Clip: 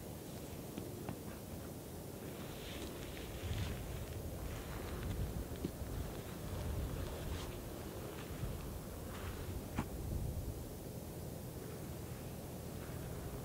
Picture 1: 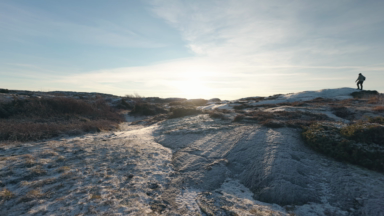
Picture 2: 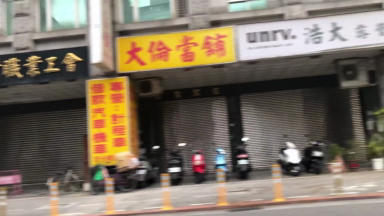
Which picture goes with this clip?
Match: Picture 1